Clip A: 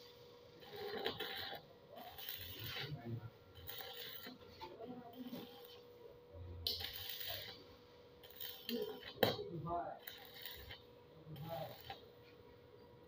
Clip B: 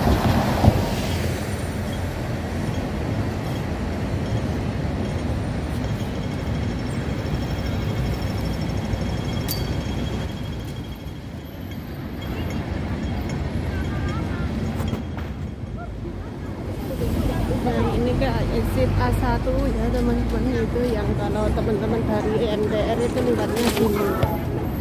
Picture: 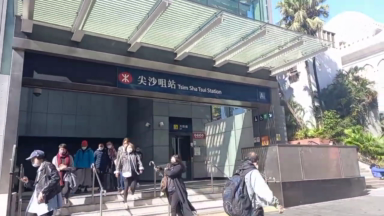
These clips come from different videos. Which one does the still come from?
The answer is B